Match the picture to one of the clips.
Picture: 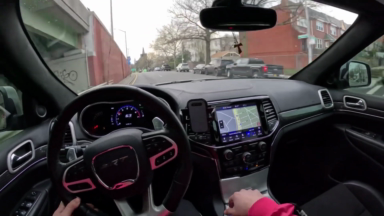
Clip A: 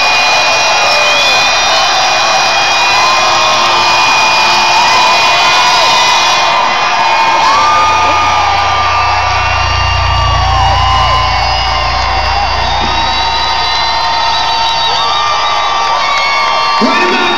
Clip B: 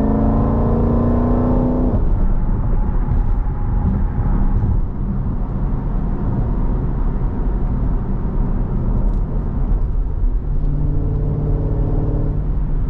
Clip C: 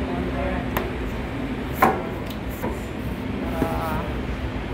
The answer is B